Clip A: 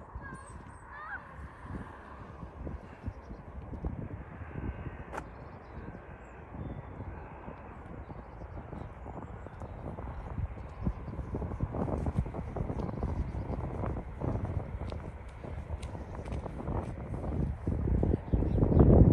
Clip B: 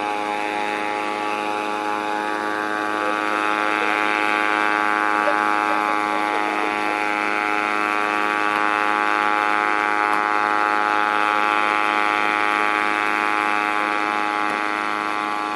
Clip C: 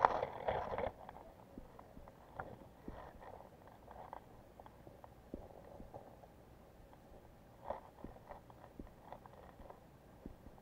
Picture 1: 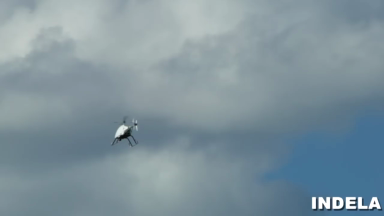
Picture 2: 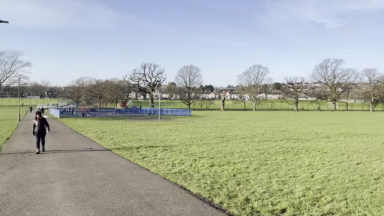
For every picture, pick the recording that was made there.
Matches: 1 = B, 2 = A